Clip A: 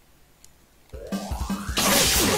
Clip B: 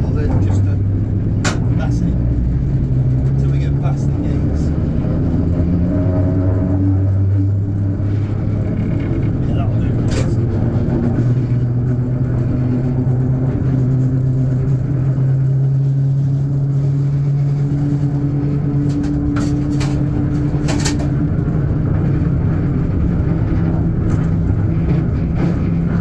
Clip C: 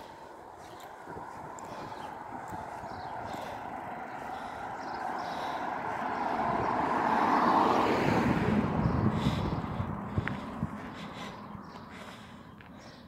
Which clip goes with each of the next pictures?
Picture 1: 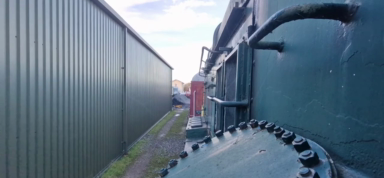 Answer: B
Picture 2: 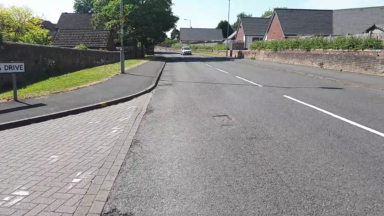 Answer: C